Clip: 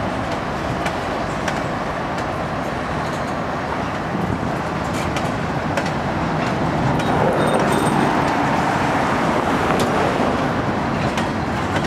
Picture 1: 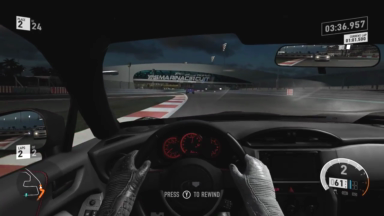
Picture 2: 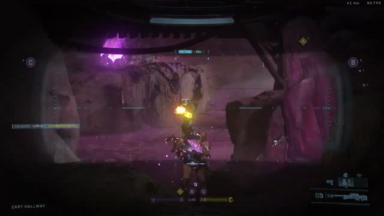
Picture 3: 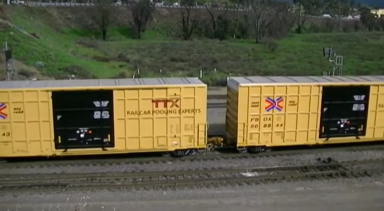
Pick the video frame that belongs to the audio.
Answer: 3